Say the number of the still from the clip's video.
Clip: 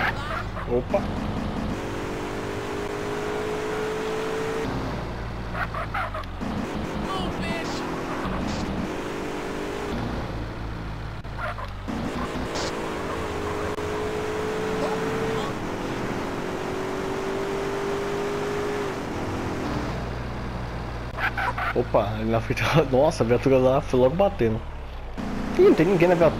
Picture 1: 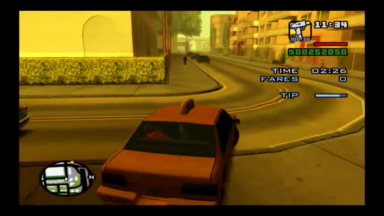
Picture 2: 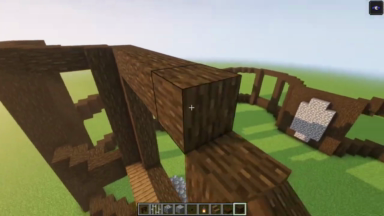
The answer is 1